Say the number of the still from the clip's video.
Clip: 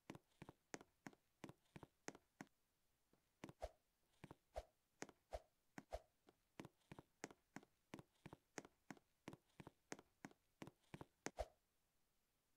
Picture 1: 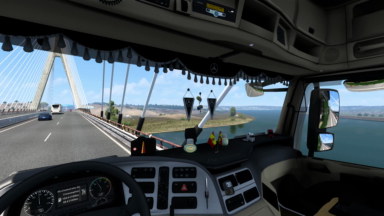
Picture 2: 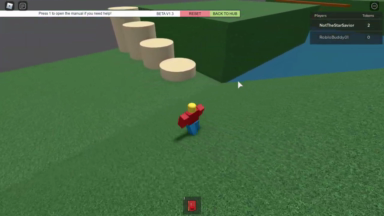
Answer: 2